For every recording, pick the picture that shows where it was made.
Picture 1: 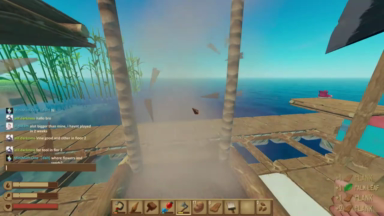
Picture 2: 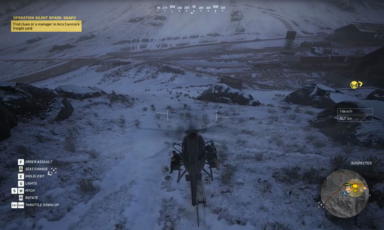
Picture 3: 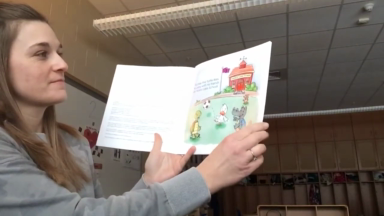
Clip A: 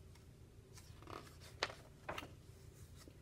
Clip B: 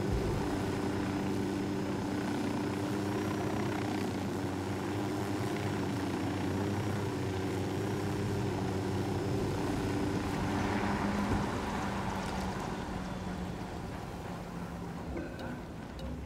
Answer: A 3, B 2